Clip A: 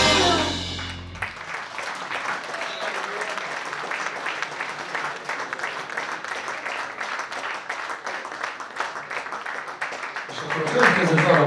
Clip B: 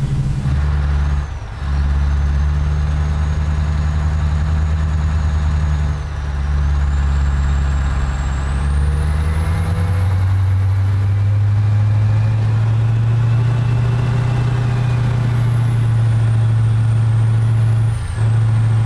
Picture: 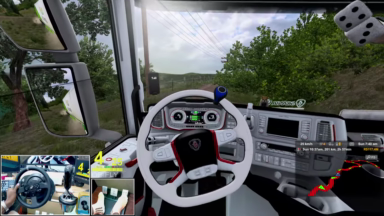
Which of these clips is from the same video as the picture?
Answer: B